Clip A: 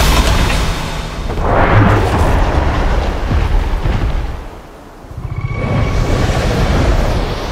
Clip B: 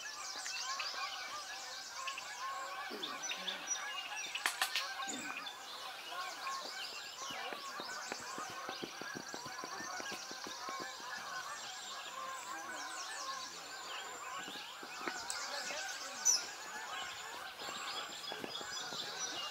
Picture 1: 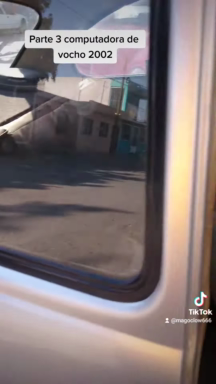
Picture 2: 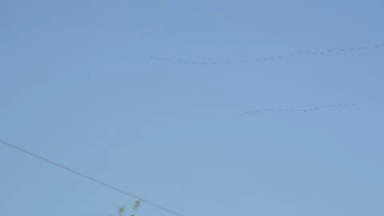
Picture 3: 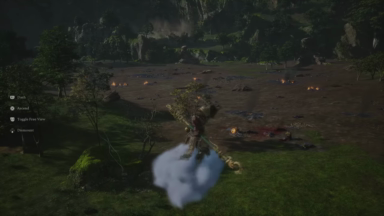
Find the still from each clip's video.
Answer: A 3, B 2